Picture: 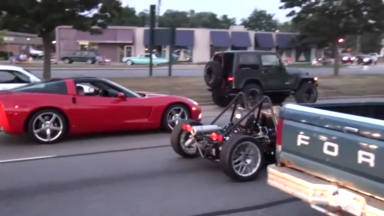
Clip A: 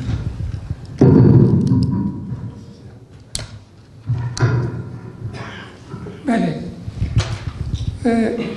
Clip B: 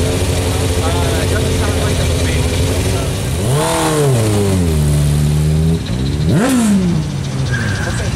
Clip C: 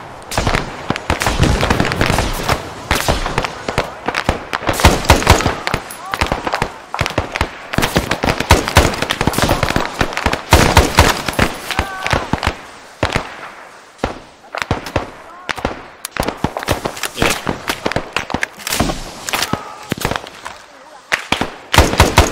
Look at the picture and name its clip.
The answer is B